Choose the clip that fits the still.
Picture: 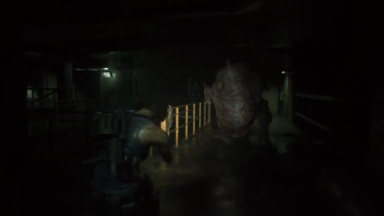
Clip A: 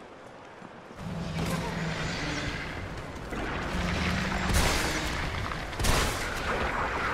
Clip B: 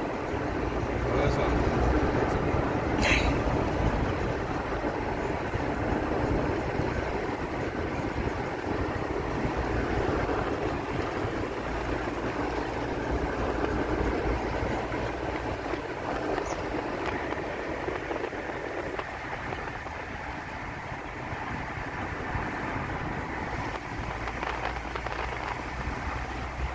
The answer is A